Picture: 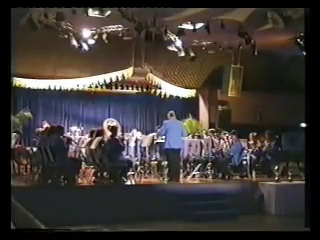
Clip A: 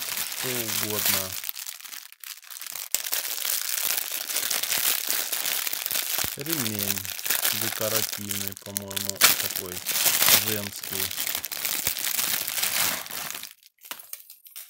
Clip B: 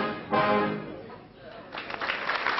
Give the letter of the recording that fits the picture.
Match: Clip B